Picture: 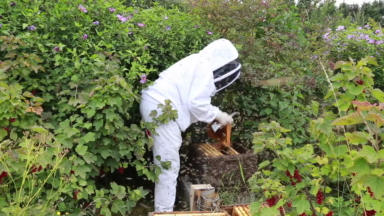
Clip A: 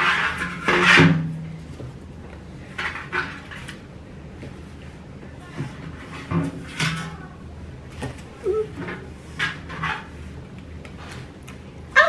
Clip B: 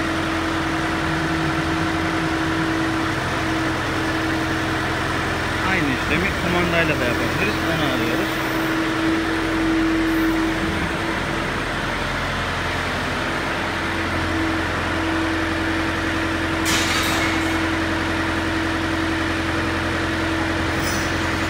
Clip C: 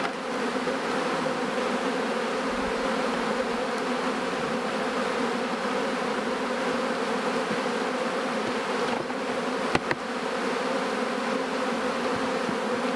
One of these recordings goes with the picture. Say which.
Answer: C